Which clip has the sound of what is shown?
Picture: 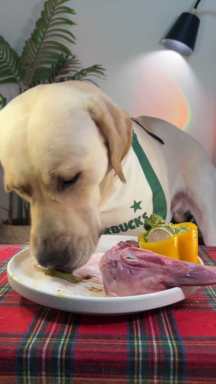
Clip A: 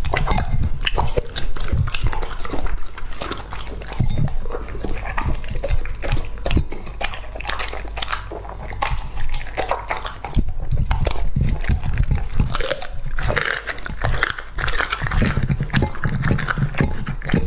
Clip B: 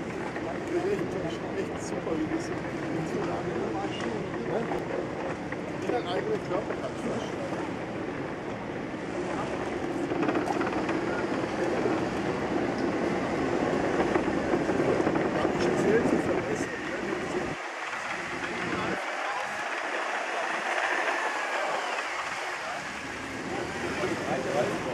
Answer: A